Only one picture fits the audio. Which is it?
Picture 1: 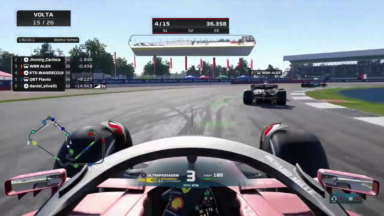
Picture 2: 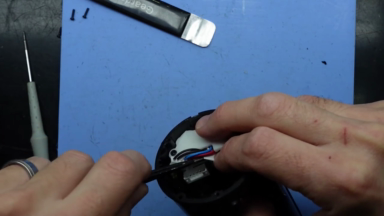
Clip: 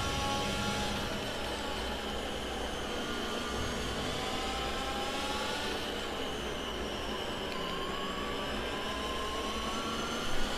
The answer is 1